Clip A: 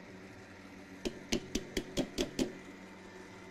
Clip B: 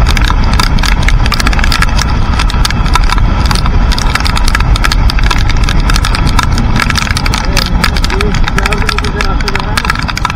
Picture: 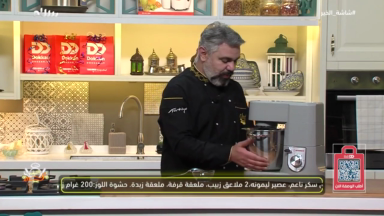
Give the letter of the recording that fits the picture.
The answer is A